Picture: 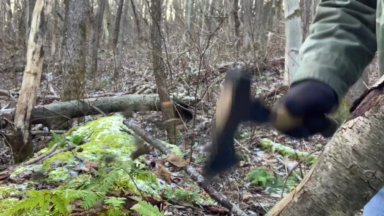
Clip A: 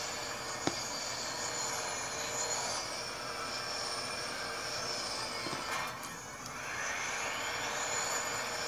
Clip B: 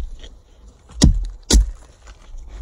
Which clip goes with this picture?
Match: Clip B